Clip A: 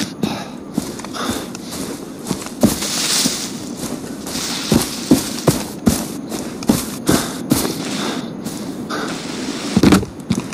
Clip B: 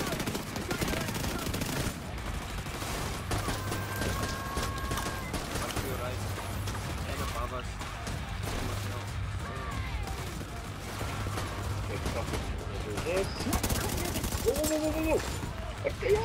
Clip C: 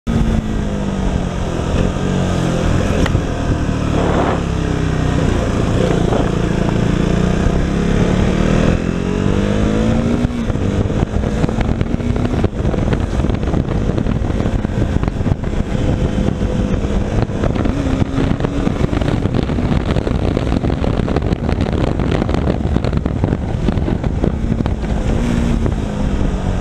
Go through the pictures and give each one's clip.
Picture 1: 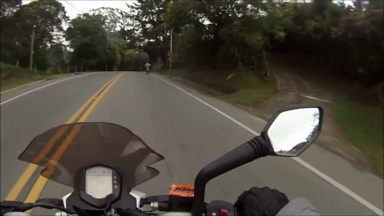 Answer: C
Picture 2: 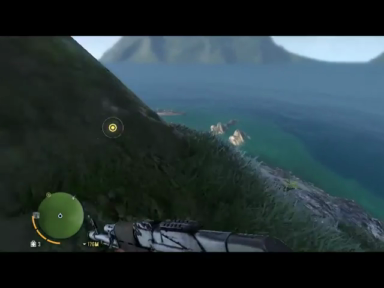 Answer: A